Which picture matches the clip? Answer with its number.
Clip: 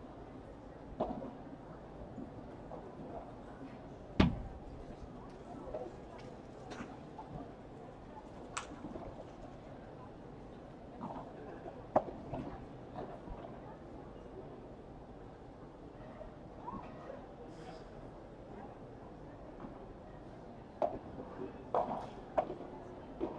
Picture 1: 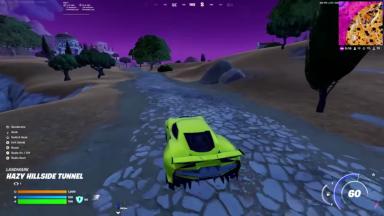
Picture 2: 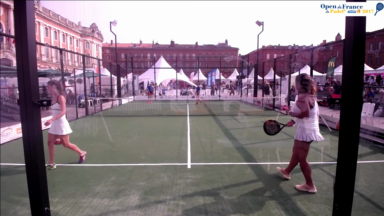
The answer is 2